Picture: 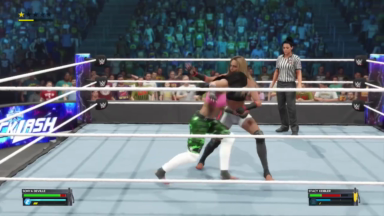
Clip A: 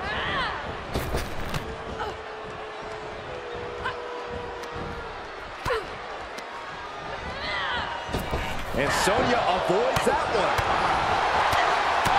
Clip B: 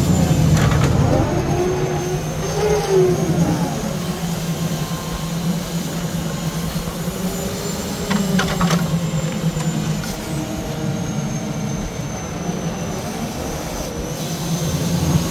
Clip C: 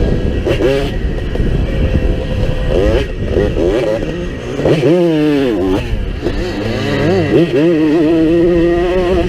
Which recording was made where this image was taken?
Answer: A